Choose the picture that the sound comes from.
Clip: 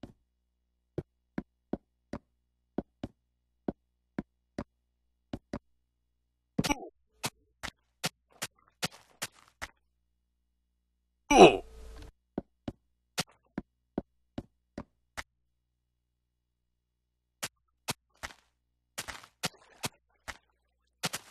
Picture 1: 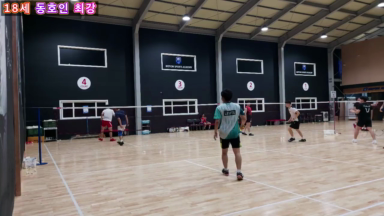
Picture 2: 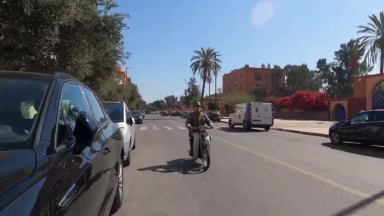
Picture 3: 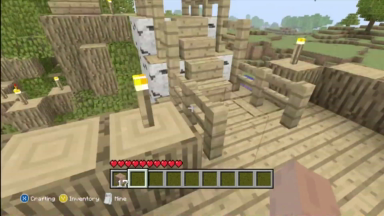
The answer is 3